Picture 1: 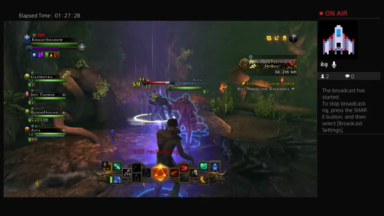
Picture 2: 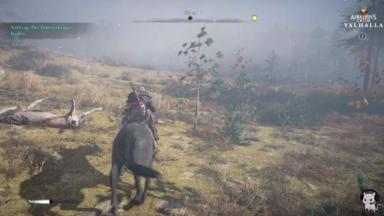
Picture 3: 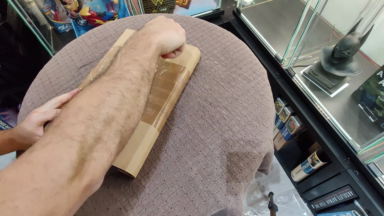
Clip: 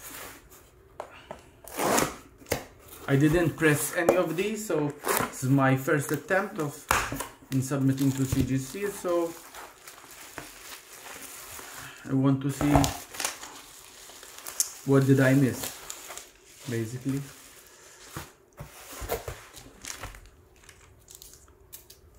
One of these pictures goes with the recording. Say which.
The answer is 3